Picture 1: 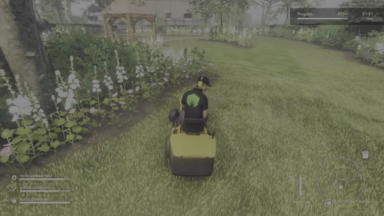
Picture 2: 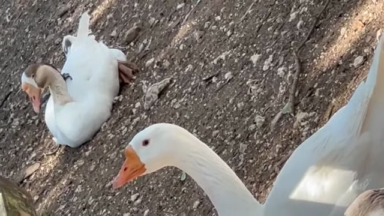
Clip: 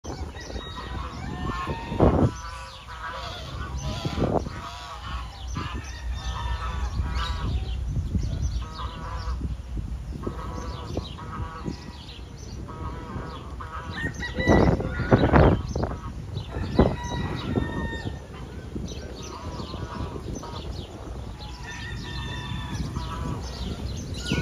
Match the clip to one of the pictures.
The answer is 2